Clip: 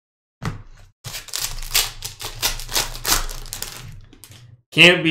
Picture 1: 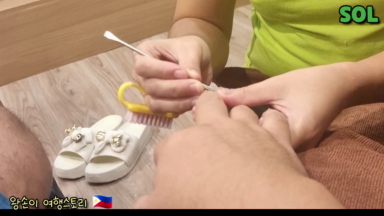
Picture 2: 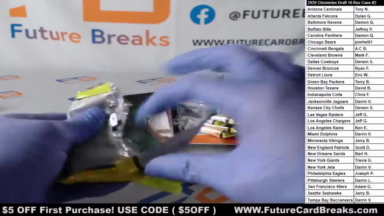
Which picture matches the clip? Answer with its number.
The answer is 2